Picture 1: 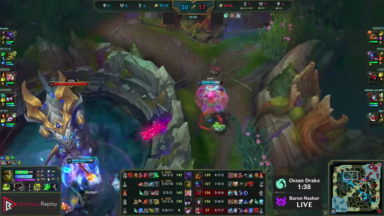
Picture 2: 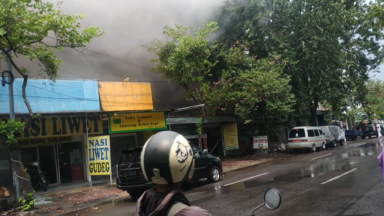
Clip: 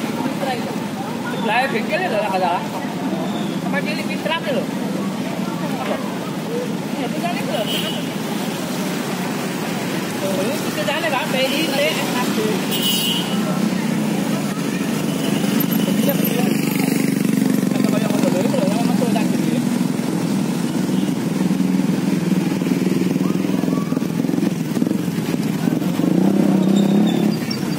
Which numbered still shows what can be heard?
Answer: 2